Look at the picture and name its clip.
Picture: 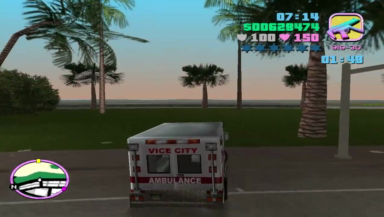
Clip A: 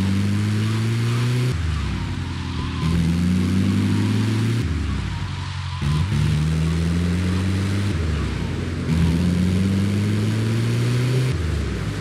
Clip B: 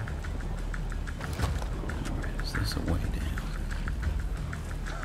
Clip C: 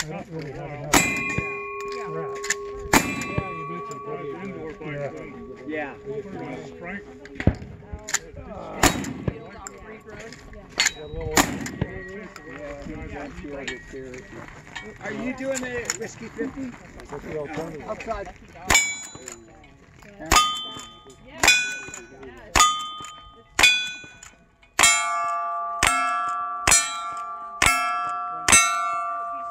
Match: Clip A